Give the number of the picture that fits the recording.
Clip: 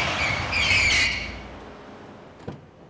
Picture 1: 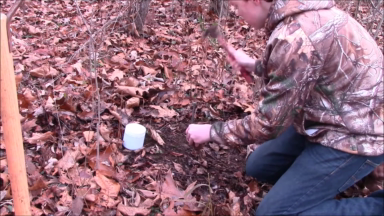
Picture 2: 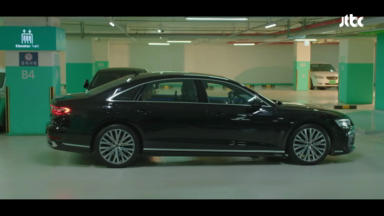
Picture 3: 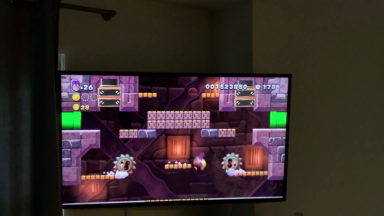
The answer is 2